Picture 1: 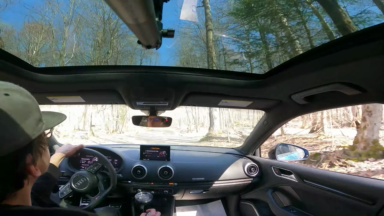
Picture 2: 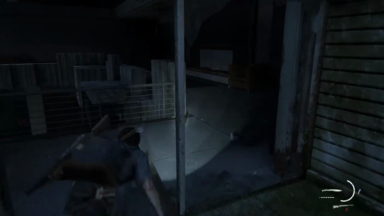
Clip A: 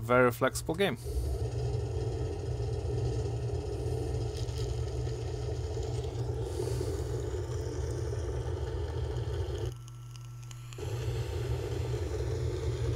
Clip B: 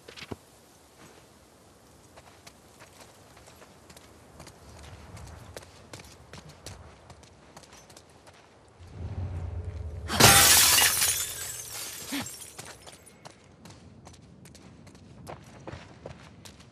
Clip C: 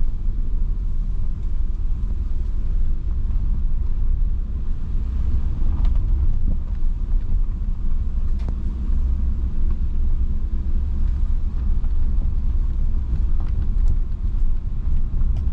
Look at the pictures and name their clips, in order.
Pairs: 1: C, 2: B